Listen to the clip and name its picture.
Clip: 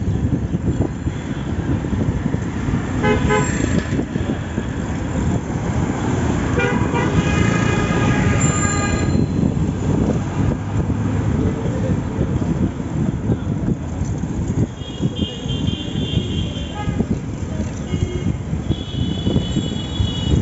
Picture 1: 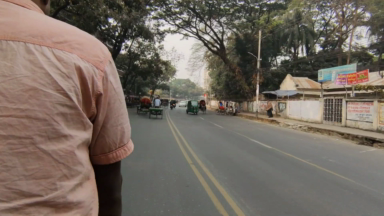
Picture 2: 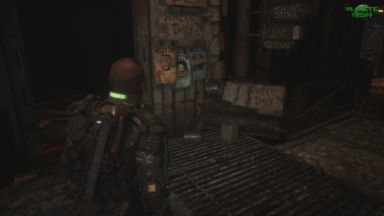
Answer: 1